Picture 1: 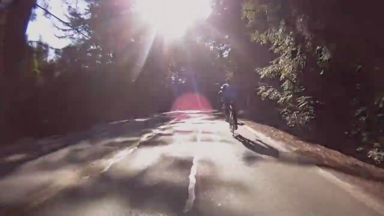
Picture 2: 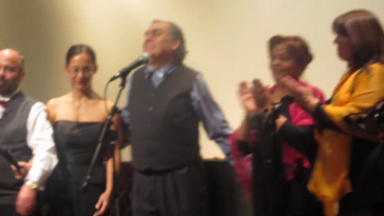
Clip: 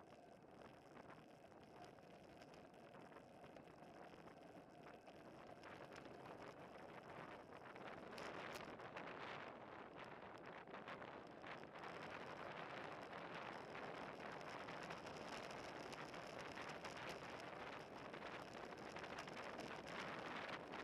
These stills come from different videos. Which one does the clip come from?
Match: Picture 1